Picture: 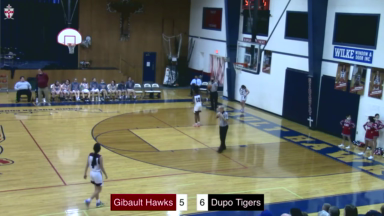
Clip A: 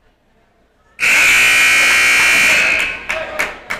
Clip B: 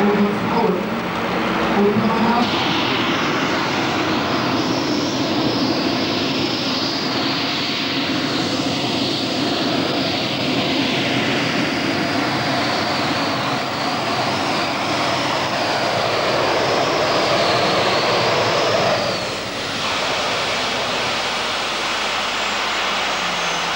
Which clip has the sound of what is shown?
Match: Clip A